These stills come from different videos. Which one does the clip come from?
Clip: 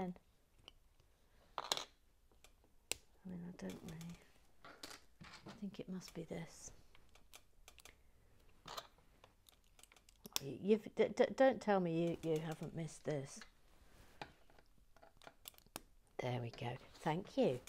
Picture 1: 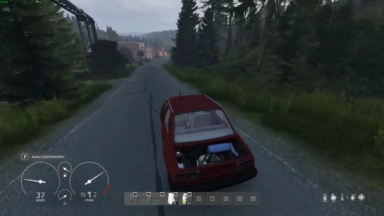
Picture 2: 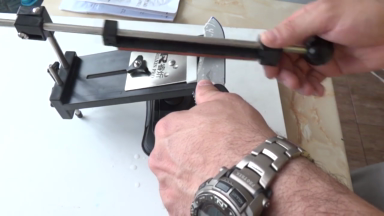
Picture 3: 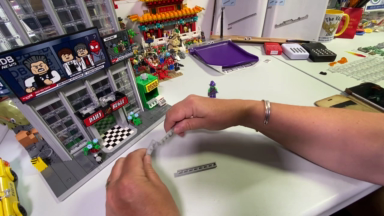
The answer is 3